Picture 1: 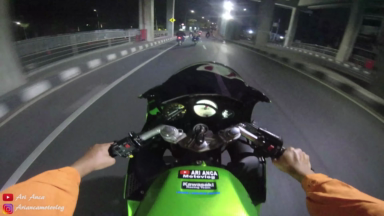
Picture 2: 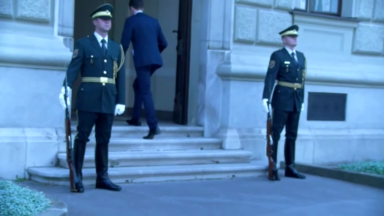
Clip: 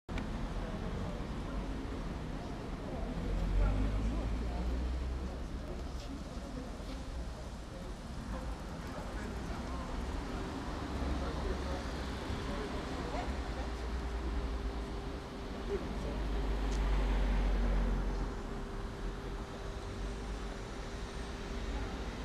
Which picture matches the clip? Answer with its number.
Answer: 2